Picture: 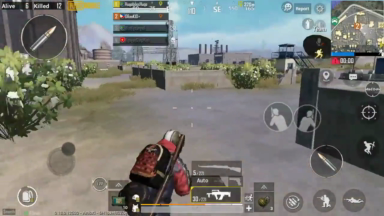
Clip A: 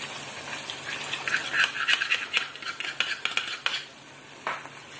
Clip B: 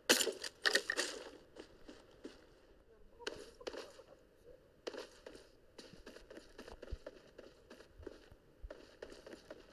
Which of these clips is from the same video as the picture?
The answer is B